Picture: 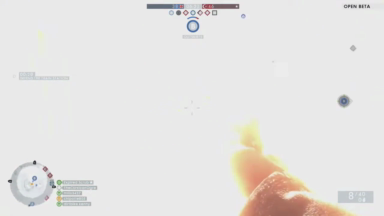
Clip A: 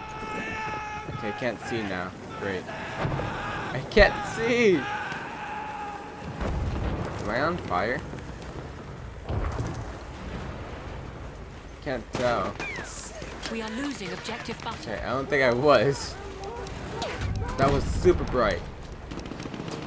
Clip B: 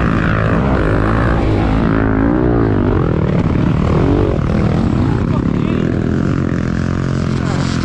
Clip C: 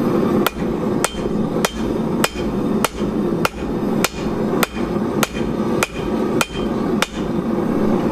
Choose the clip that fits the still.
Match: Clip A